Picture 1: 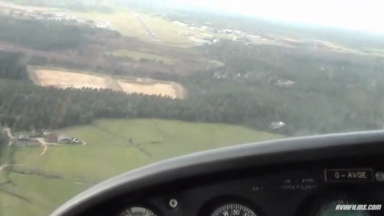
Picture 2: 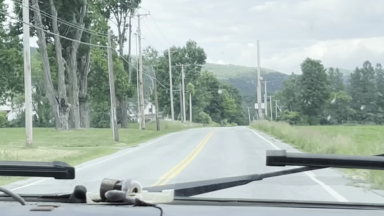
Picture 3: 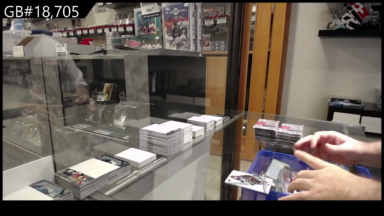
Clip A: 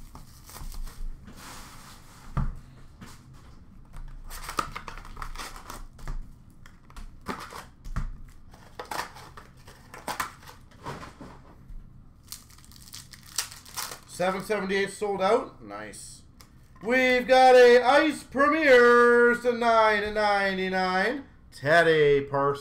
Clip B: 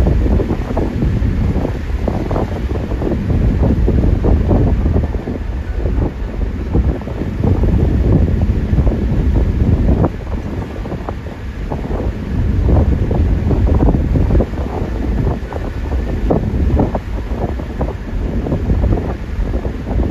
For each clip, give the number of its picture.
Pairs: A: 3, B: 2